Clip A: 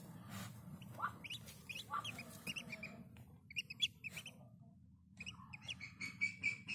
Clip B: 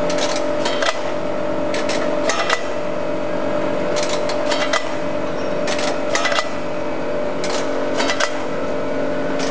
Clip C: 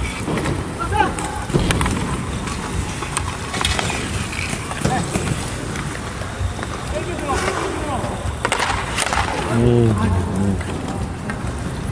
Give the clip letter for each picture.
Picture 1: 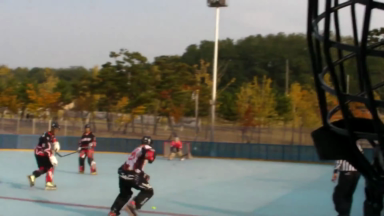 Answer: C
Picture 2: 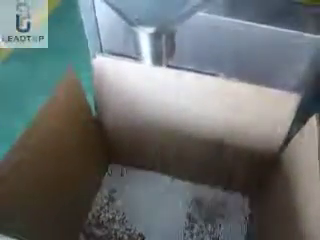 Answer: B